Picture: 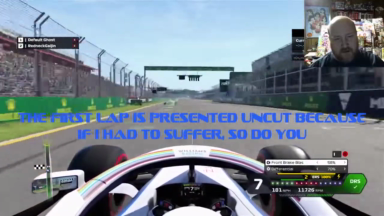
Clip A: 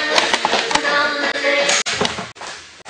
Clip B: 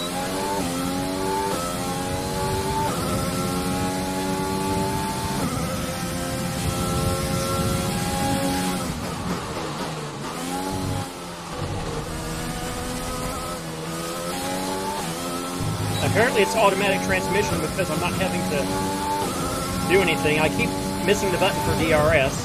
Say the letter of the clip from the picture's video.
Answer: B